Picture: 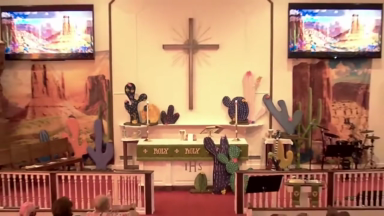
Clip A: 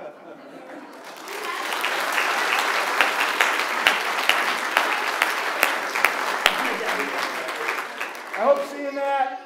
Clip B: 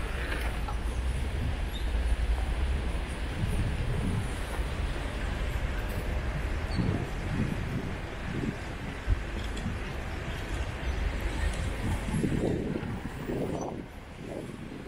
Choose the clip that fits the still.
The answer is A